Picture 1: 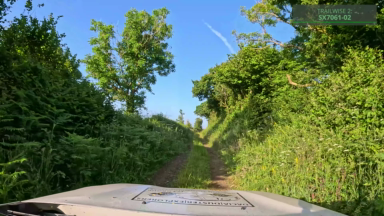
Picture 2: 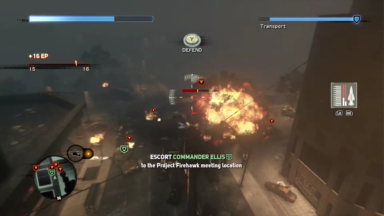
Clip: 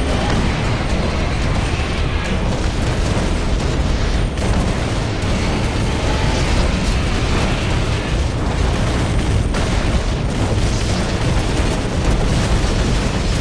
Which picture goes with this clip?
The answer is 2